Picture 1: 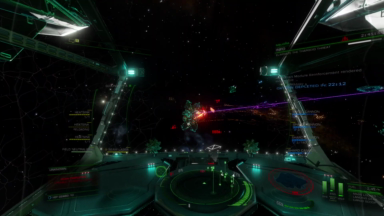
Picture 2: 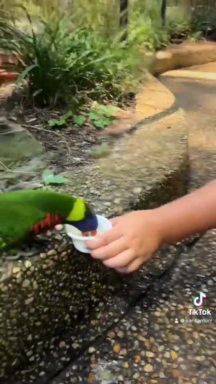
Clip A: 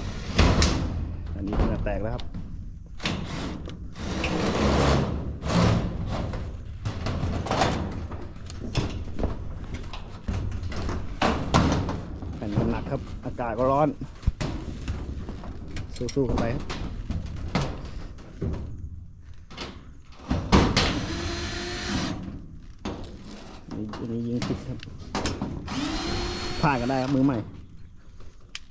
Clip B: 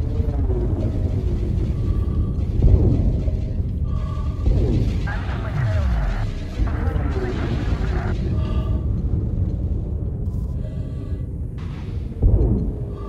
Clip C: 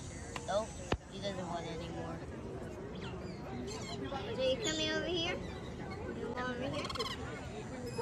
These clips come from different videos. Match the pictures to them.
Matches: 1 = B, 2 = C